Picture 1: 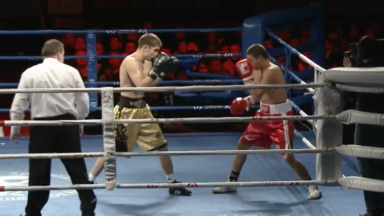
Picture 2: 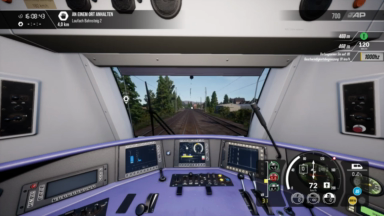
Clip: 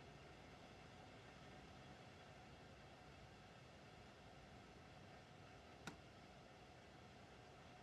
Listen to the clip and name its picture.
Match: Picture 2